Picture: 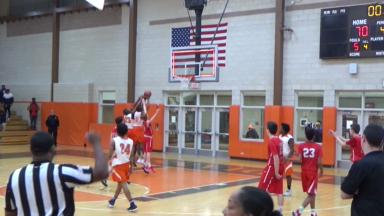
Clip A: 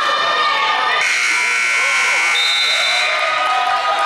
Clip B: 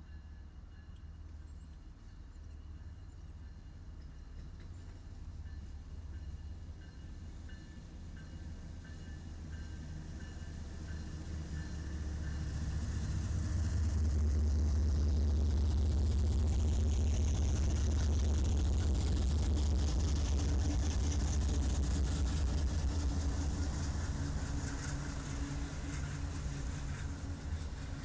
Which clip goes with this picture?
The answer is A